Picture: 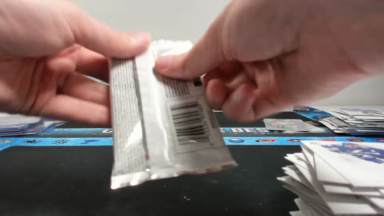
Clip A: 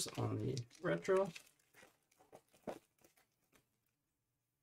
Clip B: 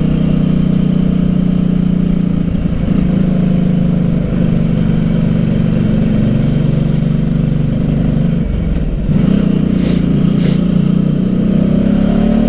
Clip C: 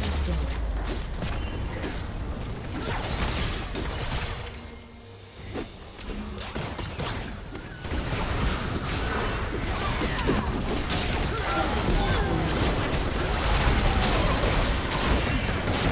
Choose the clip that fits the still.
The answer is A